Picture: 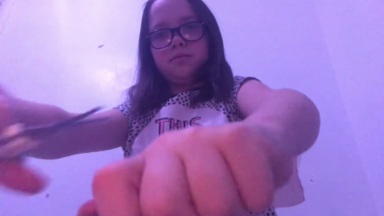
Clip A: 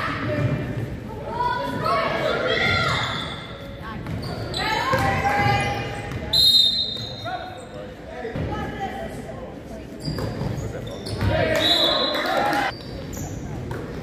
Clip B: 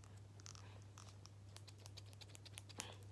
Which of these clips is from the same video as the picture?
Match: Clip B